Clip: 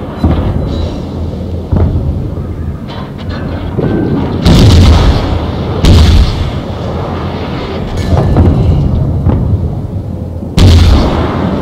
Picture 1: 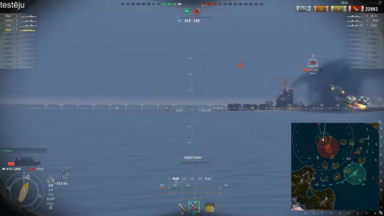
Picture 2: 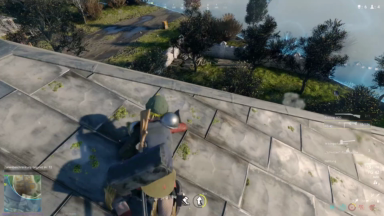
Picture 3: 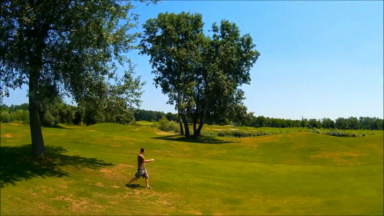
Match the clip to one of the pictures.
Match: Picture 1